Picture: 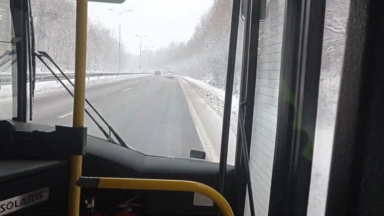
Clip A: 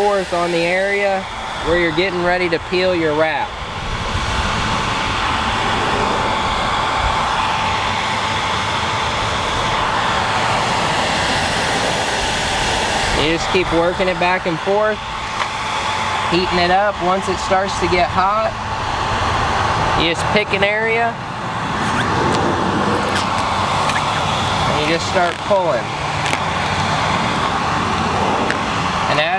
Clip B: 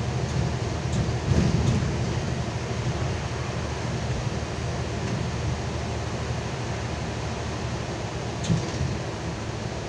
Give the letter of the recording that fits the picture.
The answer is B